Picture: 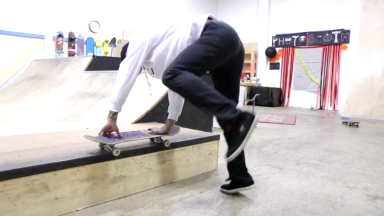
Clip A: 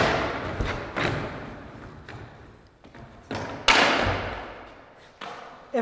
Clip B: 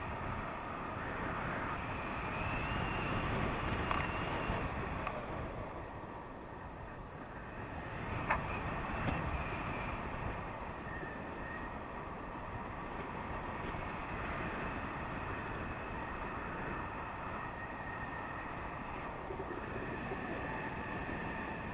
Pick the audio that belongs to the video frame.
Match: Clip A